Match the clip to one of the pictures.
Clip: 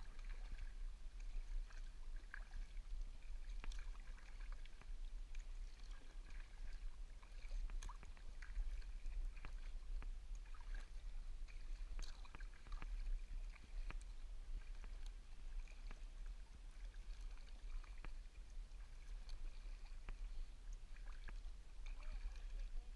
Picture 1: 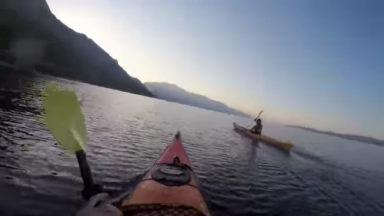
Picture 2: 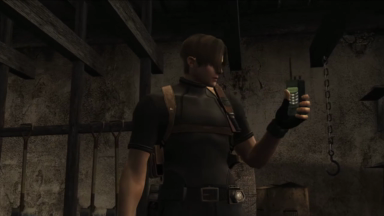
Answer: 1